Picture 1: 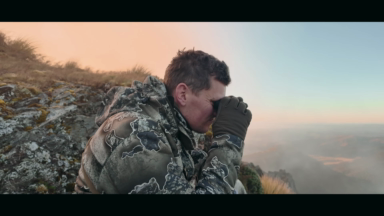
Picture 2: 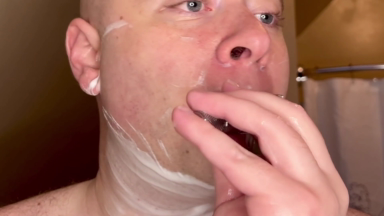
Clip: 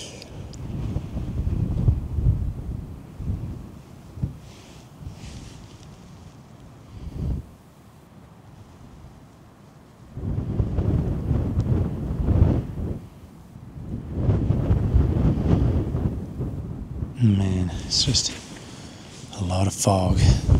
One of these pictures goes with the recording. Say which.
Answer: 1